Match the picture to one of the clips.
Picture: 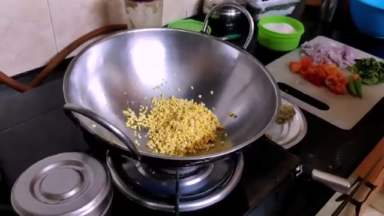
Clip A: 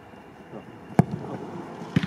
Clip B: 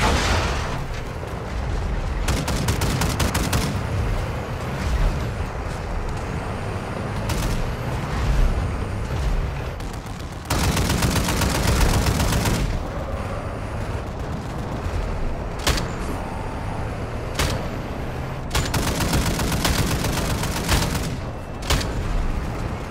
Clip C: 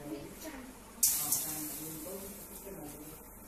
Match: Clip C